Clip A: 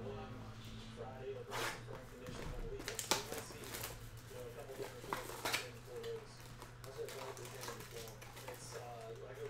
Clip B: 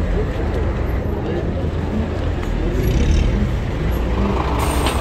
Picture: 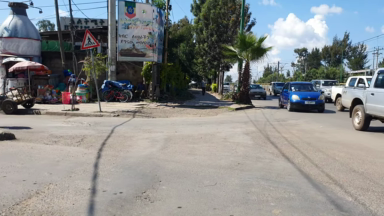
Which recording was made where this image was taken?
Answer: B